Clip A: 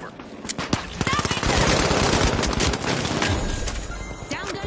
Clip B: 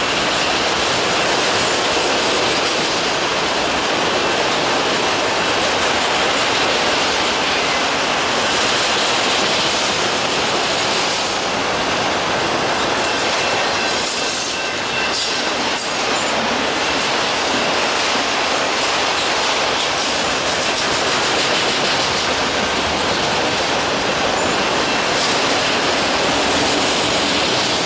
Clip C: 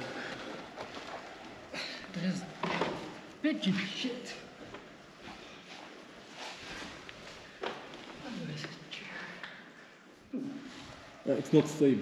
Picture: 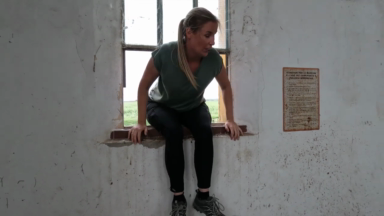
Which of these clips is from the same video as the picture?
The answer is C